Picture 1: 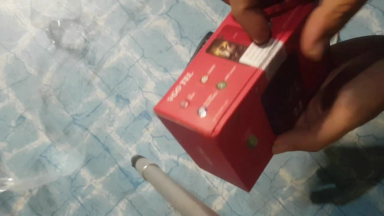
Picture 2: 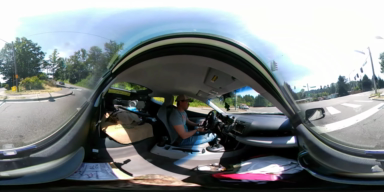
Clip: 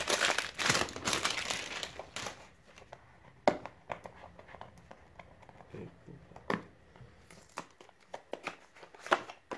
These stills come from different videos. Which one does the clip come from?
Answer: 1